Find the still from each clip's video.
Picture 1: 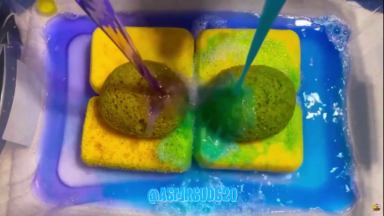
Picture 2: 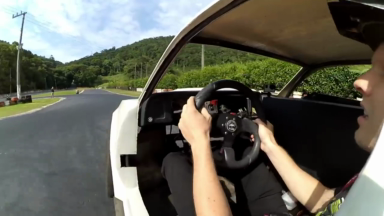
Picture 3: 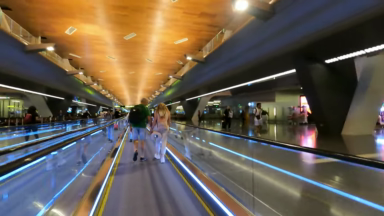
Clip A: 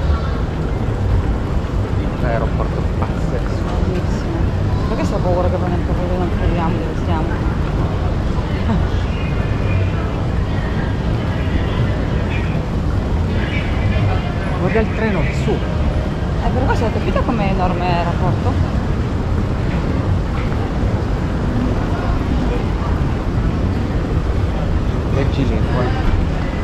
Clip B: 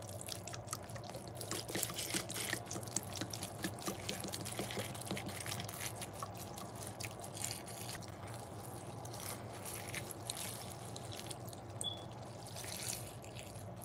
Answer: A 3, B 1